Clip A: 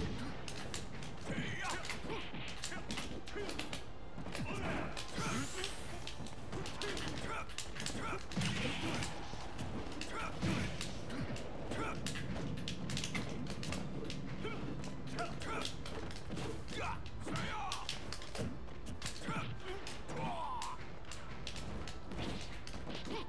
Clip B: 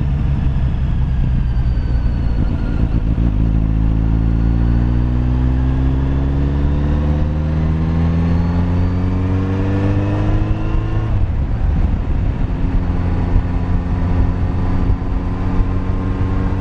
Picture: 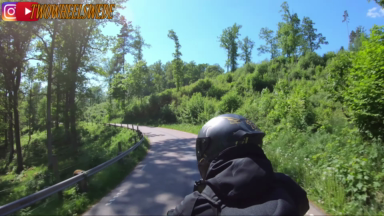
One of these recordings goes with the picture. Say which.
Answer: B